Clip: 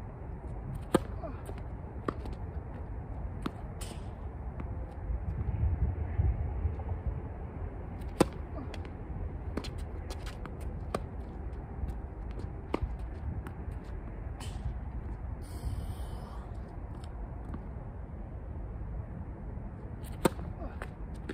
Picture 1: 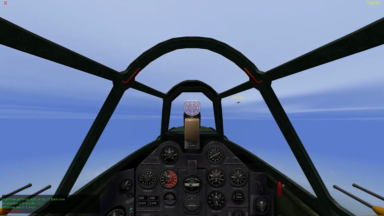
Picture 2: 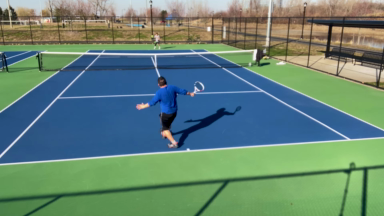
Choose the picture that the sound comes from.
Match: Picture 2